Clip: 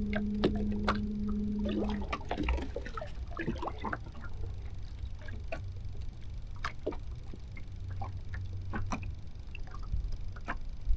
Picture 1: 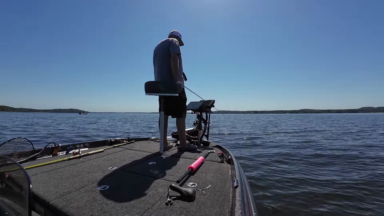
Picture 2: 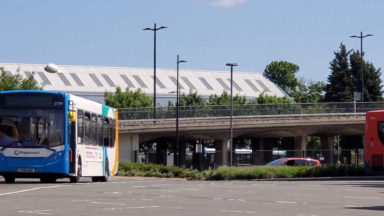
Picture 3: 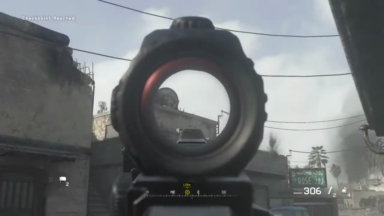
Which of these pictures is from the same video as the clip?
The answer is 1